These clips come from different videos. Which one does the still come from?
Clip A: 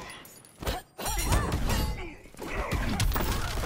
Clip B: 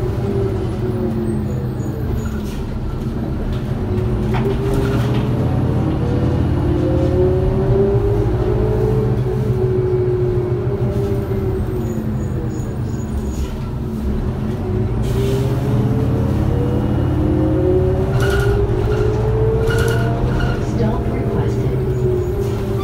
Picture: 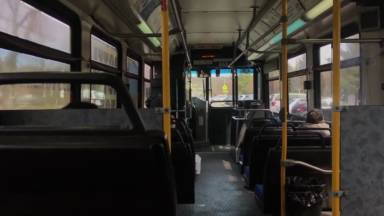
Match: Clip B